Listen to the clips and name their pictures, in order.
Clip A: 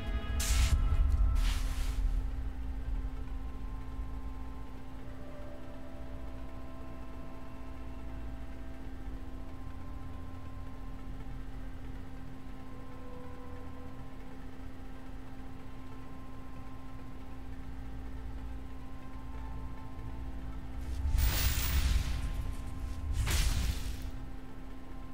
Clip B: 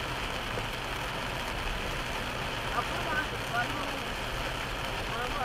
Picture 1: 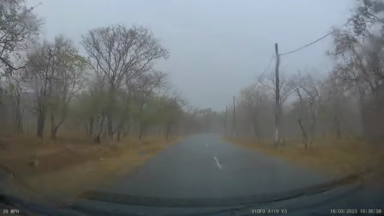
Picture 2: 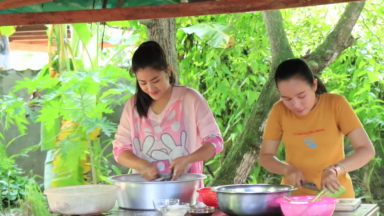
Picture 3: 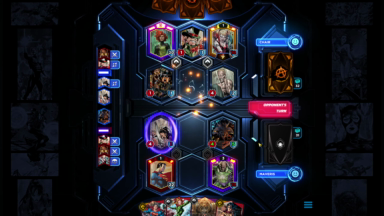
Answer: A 3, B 1